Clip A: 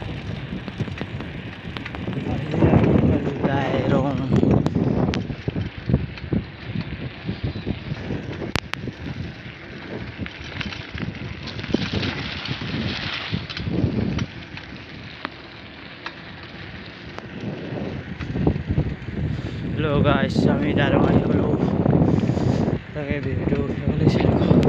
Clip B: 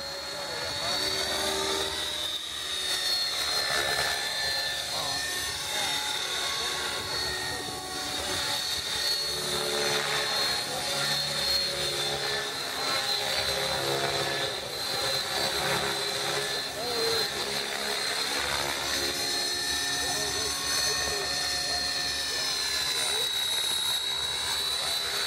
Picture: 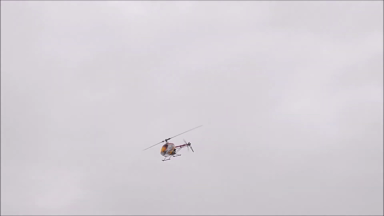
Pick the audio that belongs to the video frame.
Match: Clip B